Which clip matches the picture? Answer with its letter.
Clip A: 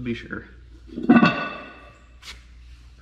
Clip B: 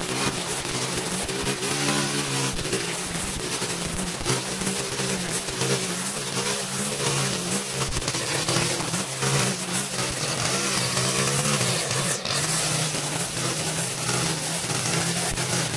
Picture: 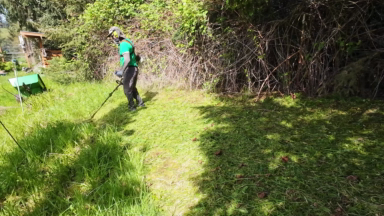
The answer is B